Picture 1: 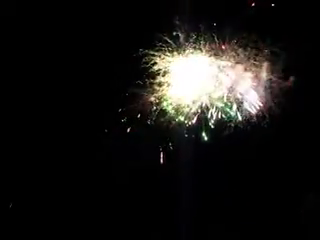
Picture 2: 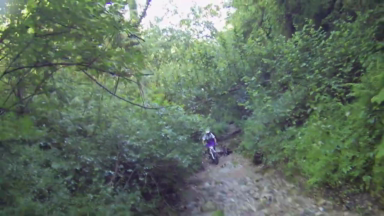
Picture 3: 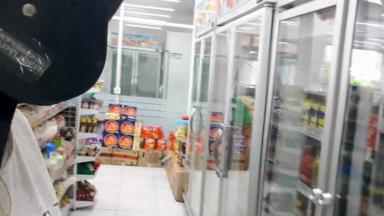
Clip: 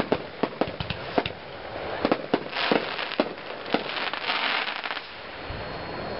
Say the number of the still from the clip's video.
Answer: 1